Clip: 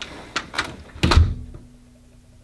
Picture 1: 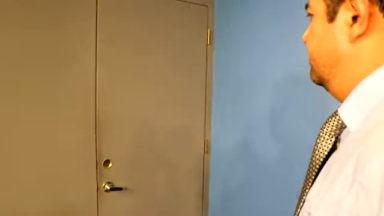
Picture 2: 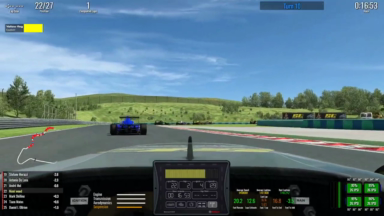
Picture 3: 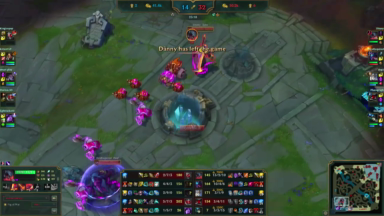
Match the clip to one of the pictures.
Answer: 1